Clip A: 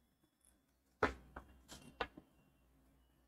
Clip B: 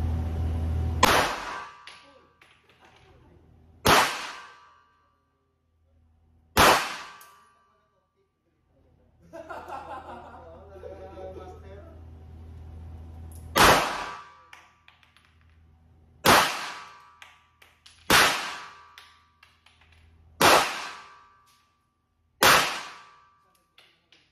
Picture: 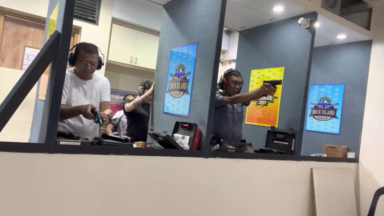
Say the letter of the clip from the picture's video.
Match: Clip B